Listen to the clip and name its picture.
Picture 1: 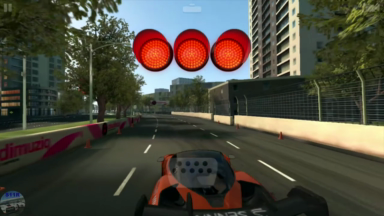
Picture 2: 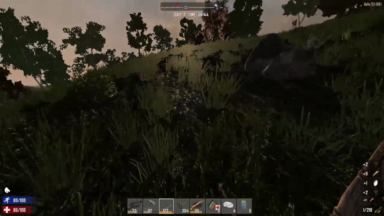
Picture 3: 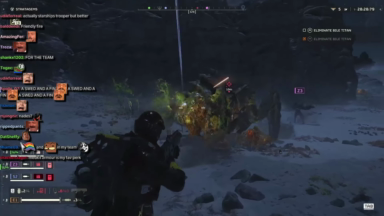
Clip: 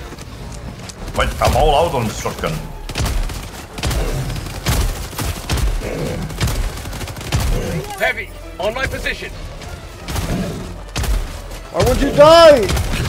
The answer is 3